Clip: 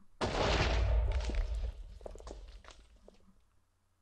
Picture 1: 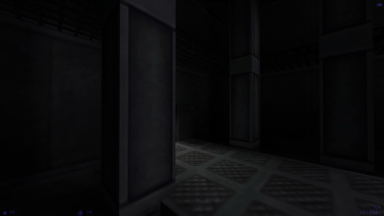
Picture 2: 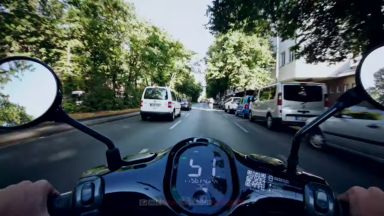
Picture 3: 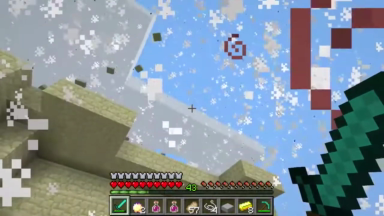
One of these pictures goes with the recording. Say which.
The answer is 3